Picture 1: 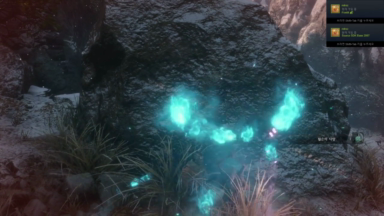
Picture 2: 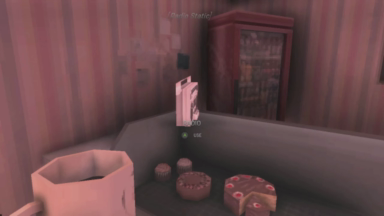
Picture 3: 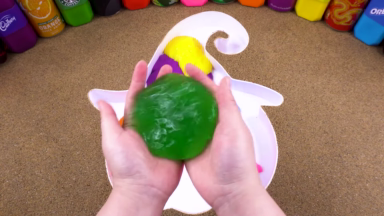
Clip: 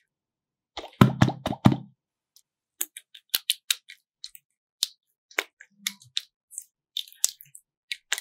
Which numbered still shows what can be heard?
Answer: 3